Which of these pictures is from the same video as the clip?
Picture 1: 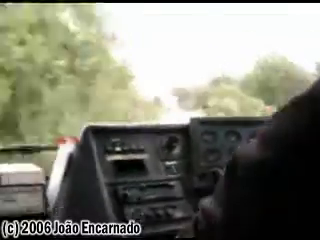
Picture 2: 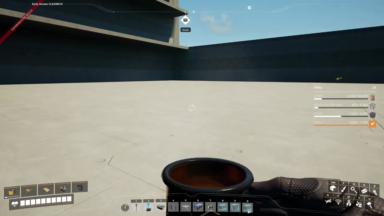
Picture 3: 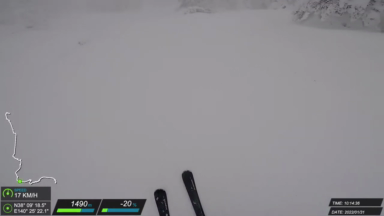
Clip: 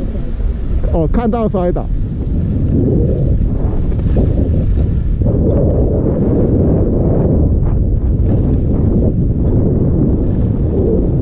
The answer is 3